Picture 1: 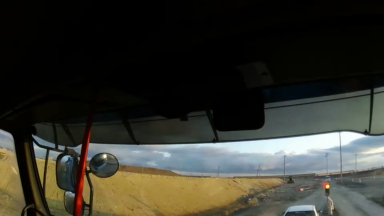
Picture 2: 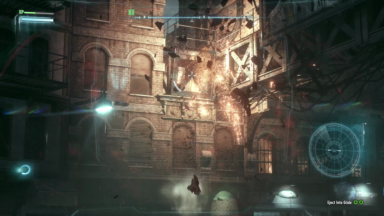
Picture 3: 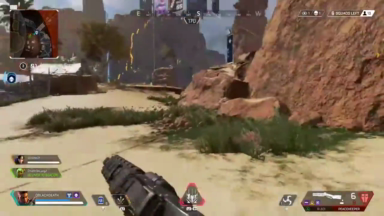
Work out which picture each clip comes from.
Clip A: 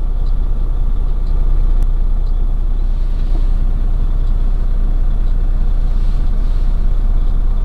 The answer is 1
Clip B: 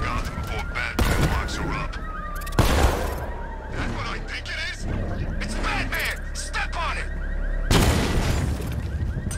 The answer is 2